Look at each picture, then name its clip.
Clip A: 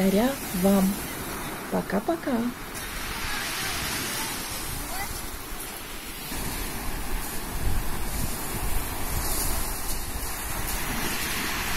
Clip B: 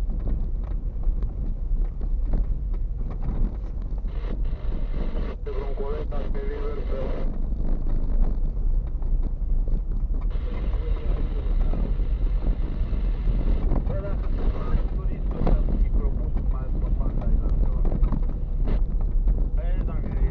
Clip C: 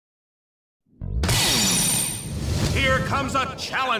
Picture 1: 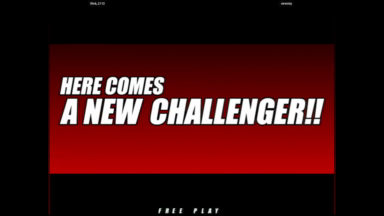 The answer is C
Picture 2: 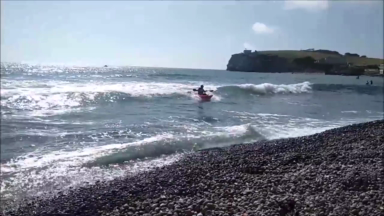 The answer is A